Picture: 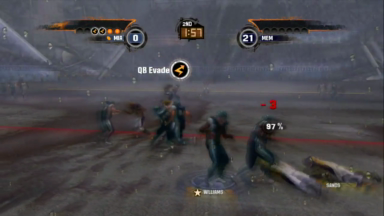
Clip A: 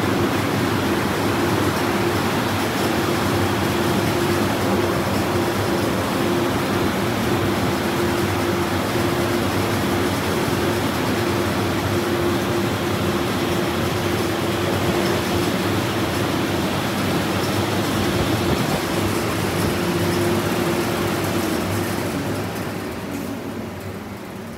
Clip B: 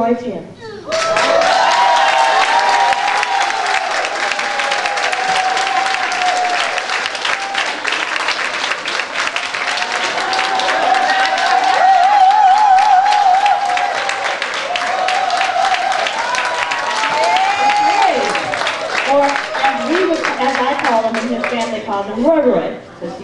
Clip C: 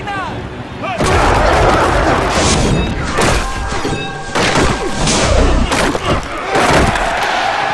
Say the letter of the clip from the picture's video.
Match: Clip C